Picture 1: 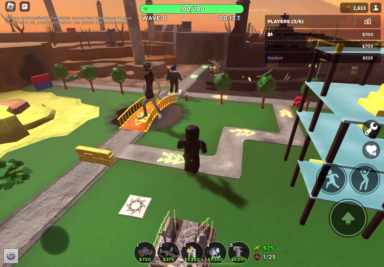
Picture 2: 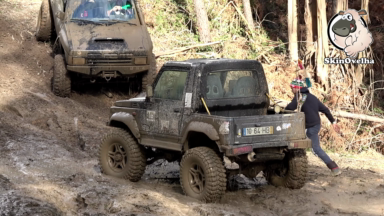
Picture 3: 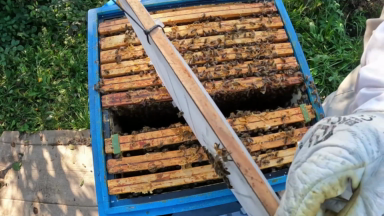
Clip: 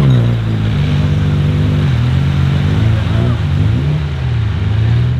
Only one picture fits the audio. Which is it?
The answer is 2